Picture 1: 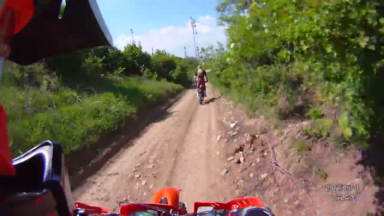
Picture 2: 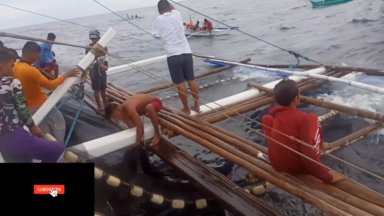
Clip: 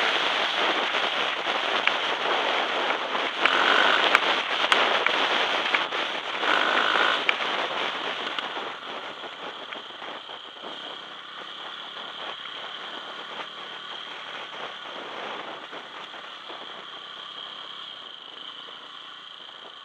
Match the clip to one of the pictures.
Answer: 1